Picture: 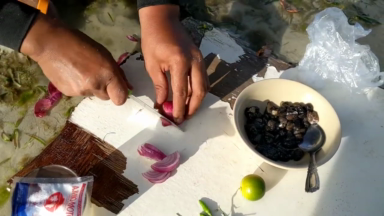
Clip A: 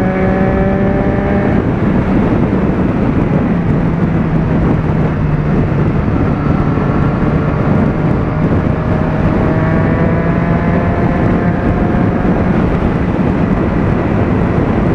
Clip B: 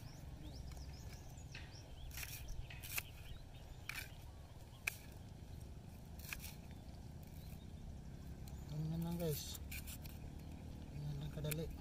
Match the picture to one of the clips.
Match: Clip B